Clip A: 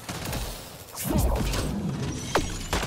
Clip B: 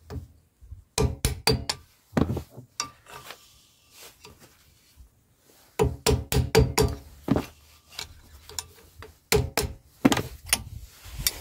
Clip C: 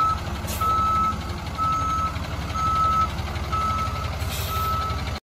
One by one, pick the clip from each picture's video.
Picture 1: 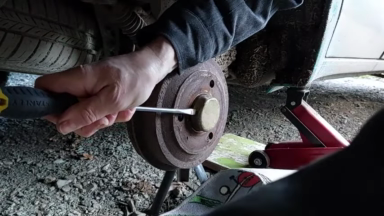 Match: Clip B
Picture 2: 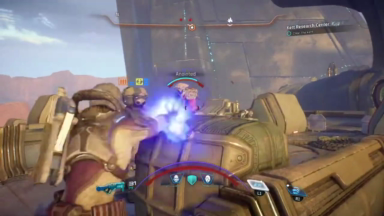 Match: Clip A